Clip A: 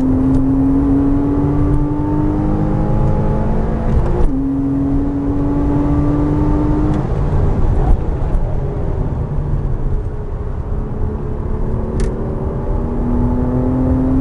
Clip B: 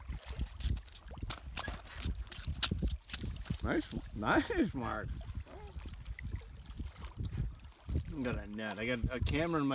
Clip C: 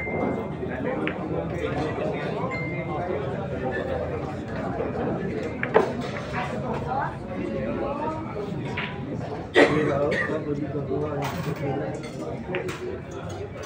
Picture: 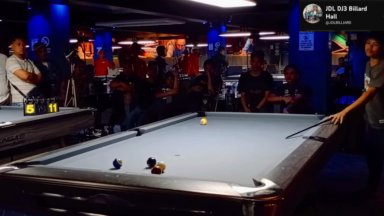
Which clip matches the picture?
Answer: C